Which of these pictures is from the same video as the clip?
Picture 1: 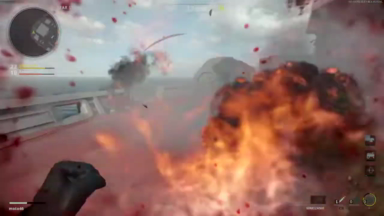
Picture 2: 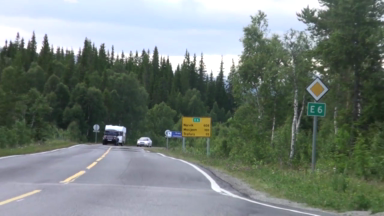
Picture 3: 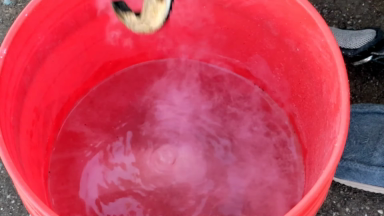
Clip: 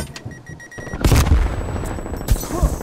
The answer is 1